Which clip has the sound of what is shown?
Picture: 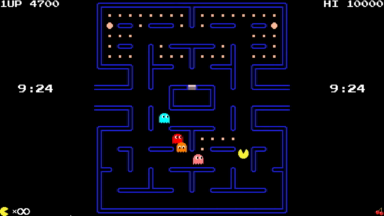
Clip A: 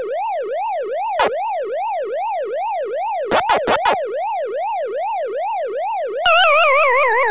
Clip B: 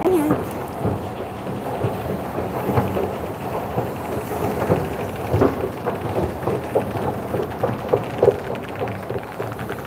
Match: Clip A